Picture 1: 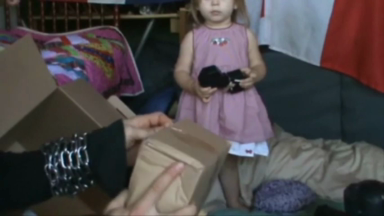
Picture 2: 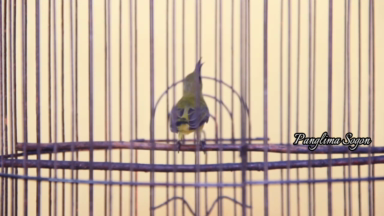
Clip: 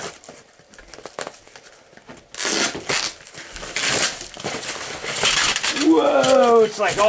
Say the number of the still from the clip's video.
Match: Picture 1